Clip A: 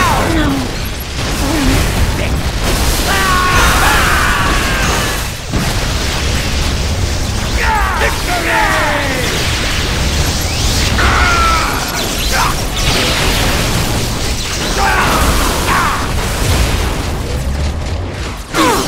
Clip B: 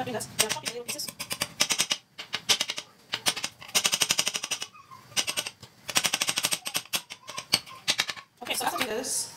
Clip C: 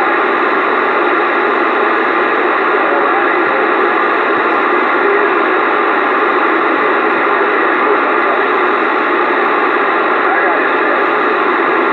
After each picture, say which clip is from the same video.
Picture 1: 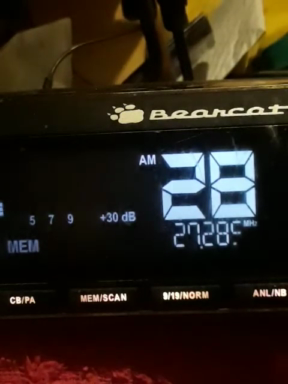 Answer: C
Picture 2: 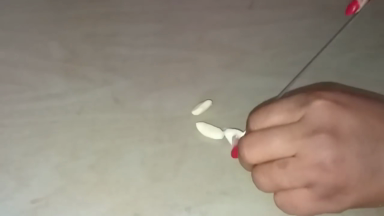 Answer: B